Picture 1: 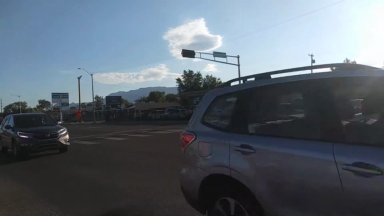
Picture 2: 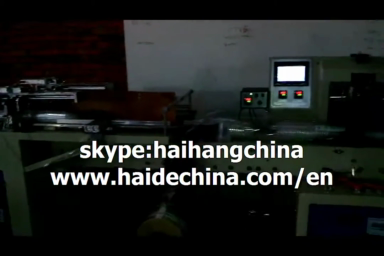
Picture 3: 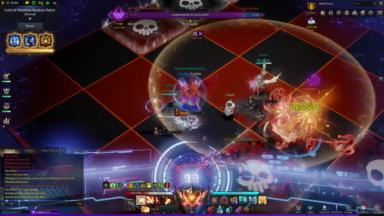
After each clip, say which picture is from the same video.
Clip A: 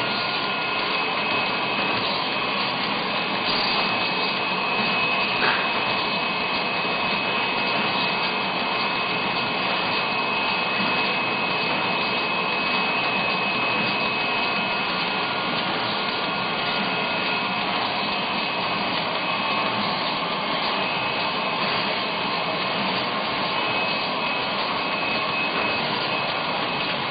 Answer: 2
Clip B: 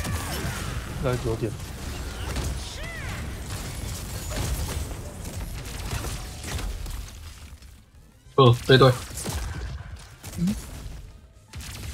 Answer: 3